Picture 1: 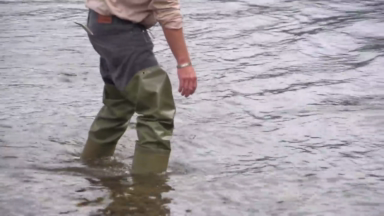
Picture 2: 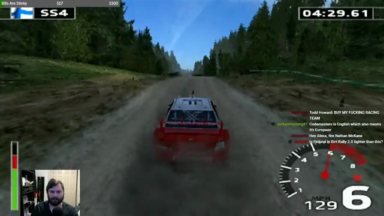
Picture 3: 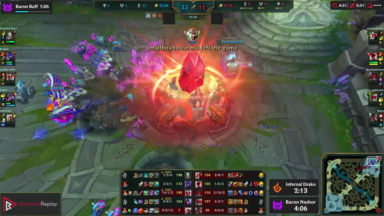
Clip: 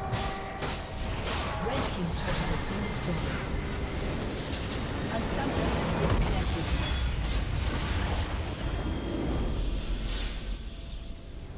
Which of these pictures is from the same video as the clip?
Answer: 3